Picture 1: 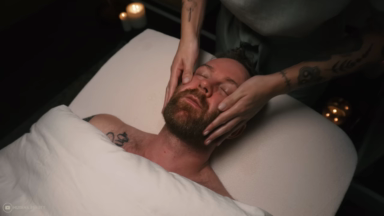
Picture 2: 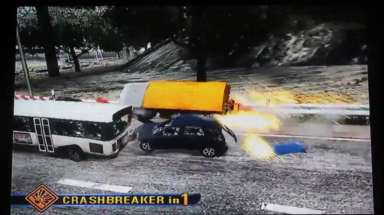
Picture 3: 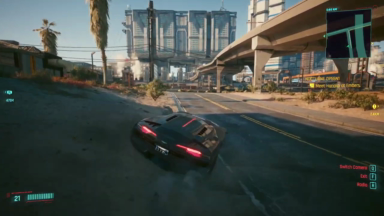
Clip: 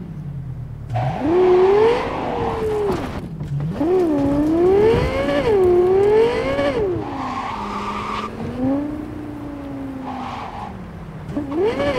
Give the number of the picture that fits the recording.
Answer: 3